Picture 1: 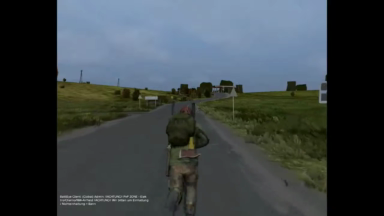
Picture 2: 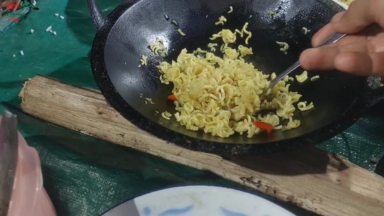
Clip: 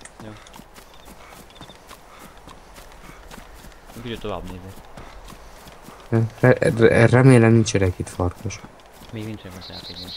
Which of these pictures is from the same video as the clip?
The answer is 1